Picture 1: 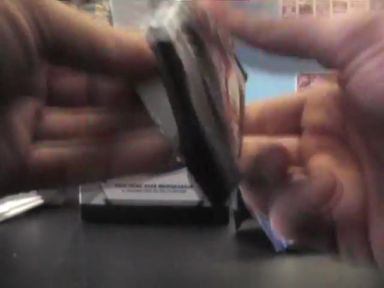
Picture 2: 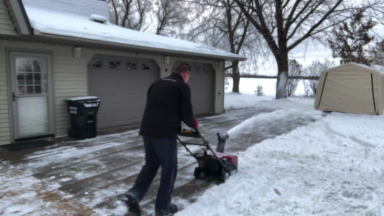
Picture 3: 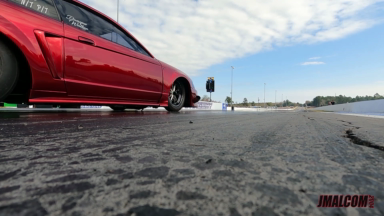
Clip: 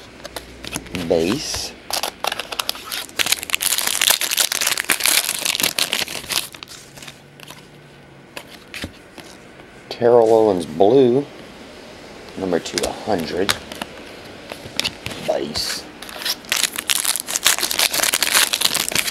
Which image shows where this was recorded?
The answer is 1